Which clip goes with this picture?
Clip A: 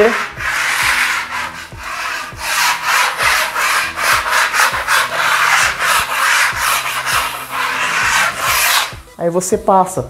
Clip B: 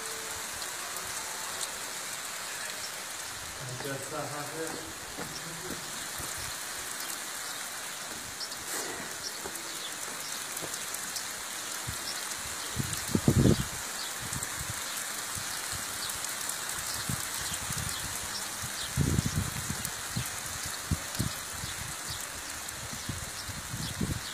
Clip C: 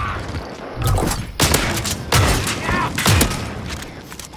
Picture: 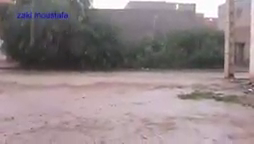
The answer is B